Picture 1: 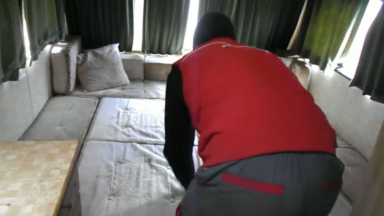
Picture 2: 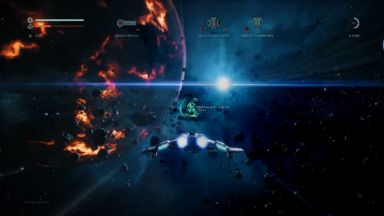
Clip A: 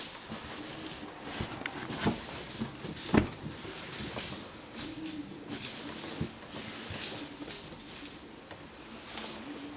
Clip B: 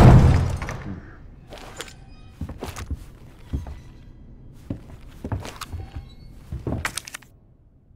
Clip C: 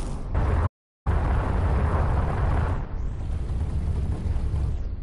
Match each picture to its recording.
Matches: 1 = A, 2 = C